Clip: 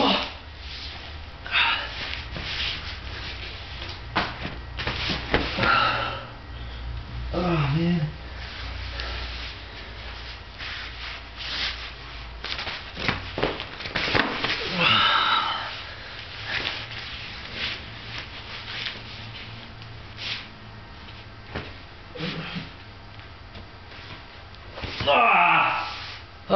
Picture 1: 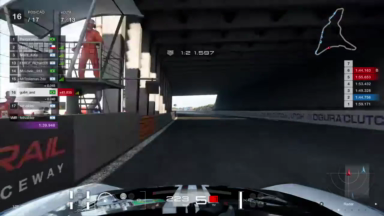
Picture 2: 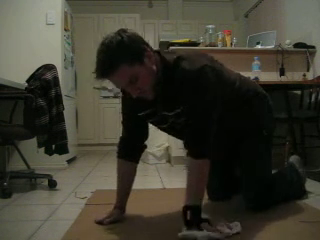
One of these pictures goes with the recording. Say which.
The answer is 2